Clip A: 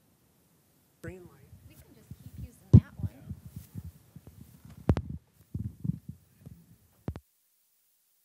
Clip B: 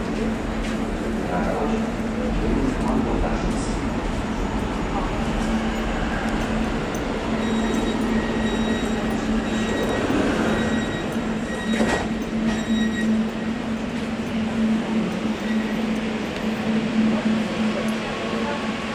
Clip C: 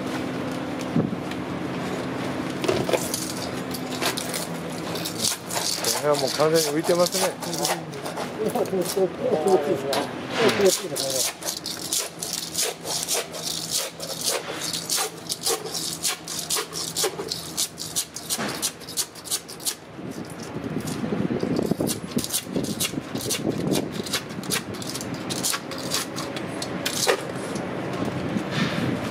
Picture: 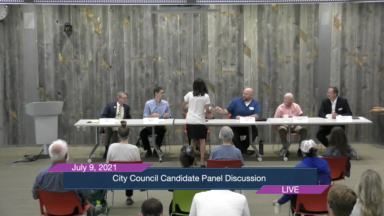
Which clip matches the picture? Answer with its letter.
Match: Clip A